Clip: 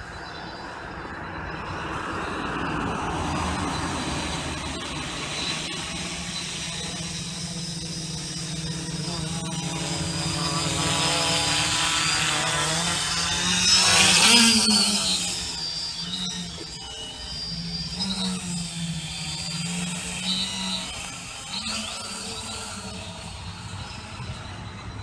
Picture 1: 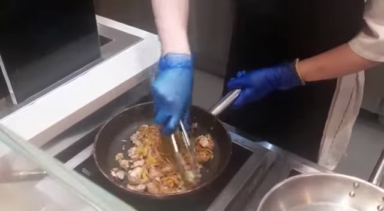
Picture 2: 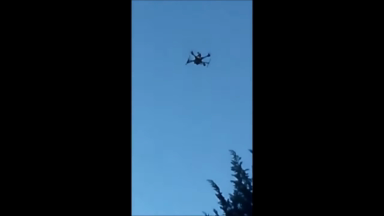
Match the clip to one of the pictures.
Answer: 2